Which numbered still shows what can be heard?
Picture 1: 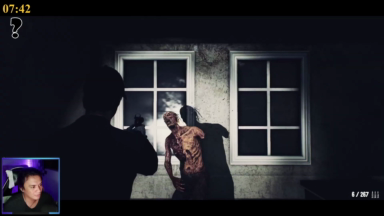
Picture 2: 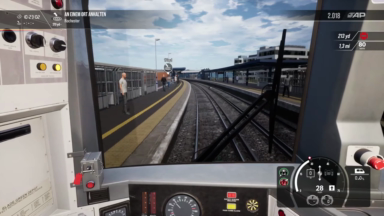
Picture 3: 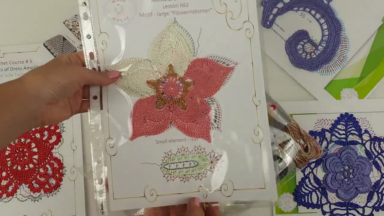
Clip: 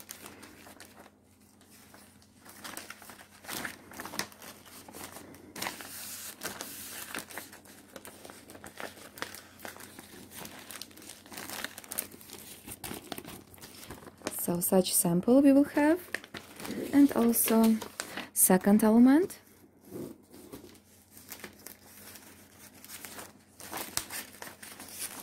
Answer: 3